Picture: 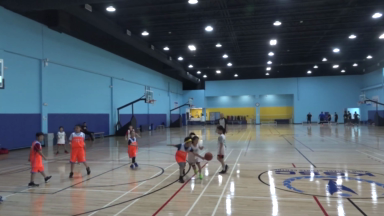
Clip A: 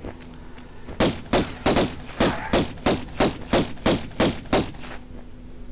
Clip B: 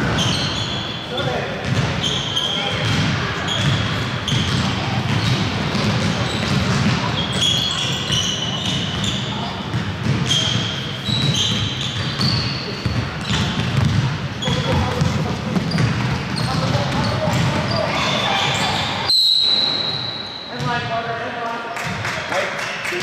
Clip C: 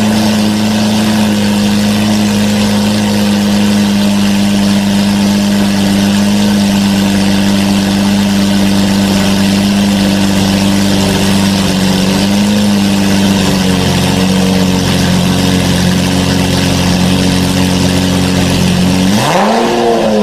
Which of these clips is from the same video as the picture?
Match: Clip B